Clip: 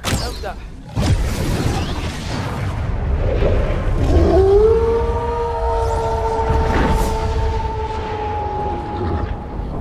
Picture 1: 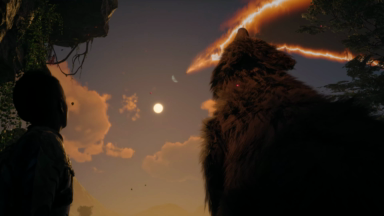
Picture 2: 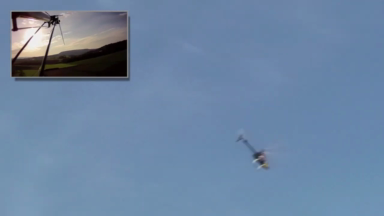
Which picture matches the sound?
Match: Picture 1